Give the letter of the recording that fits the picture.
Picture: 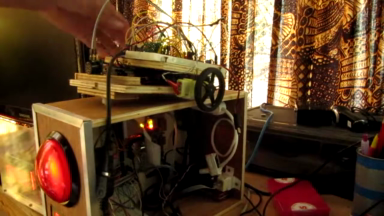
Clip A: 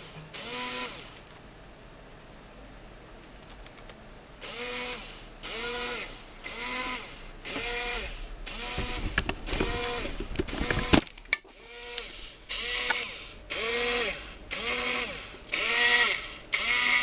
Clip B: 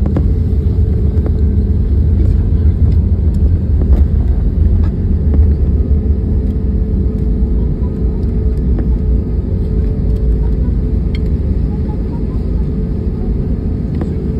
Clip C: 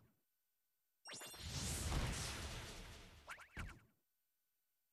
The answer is A